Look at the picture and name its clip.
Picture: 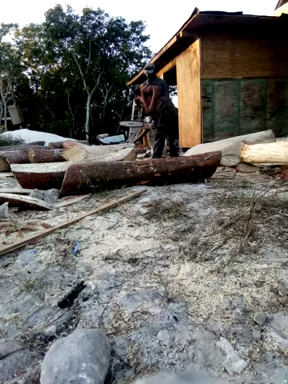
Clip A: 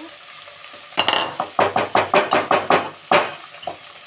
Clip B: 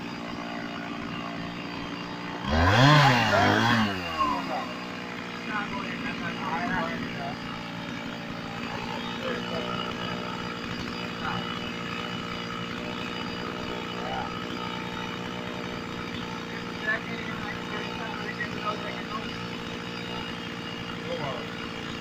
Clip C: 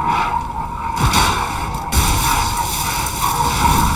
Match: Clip B